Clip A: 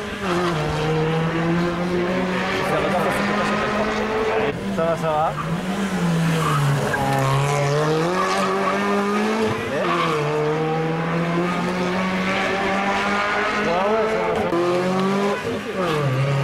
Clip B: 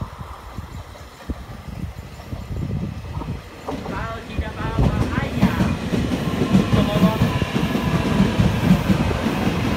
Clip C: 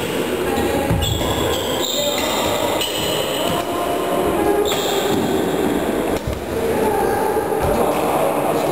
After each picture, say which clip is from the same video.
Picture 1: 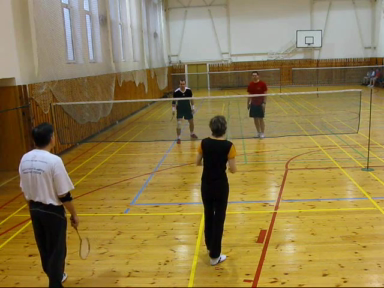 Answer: C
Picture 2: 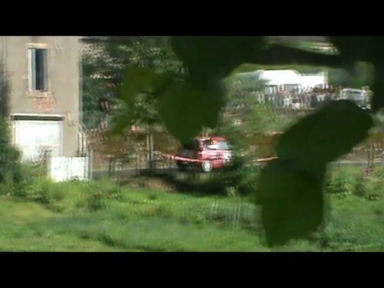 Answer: A